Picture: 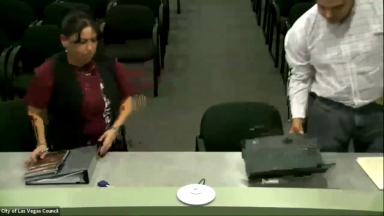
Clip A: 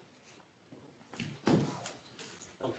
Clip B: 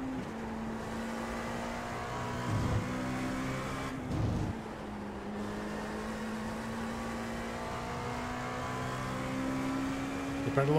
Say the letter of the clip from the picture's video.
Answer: A